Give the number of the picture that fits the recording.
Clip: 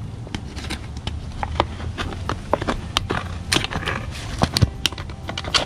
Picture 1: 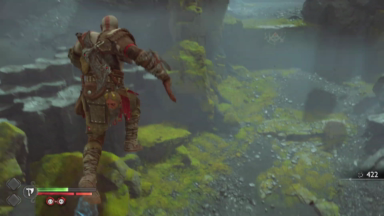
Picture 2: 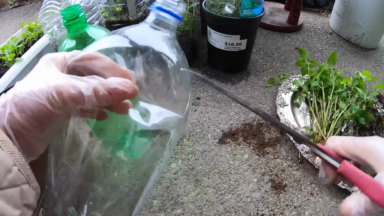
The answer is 2